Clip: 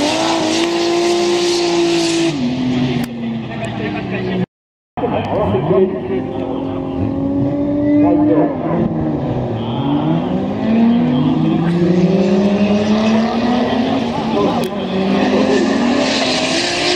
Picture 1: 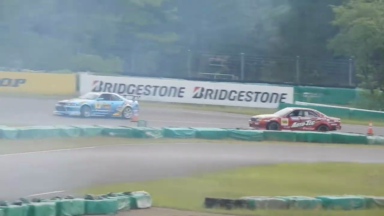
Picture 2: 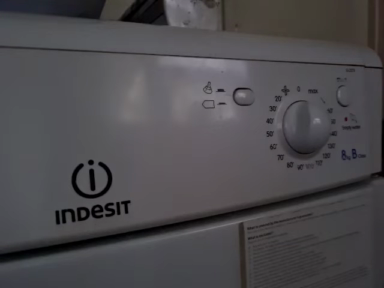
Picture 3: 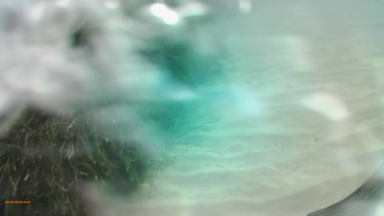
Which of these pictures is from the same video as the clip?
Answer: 1